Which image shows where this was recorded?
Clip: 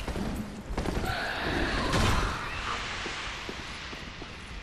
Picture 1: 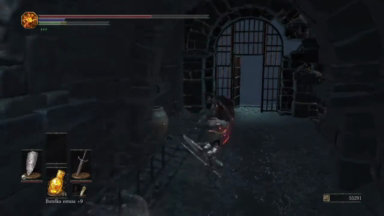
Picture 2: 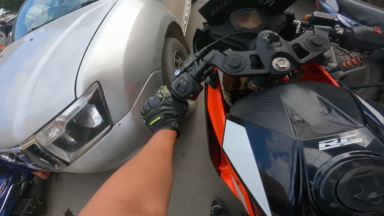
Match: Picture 1